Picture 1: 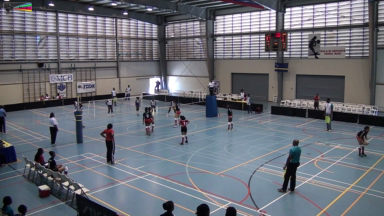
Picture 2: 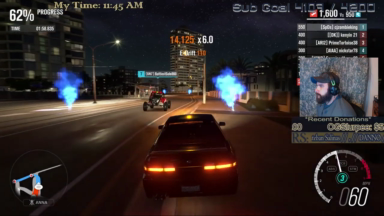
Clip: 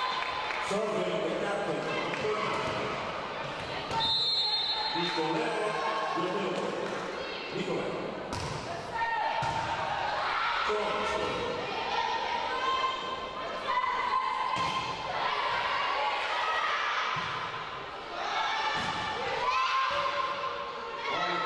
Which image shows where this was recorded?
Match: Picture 1